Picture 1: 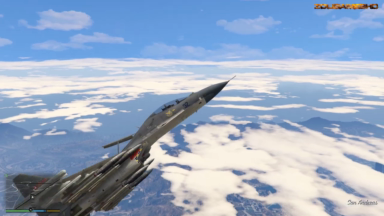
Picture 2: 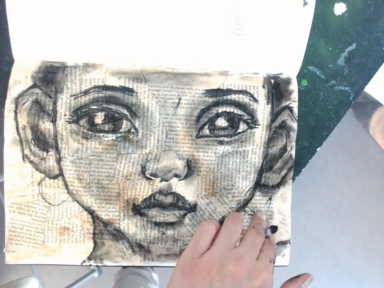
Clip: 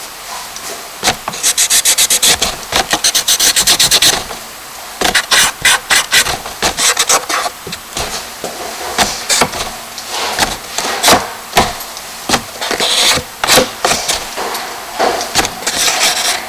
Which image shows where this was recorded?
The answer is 2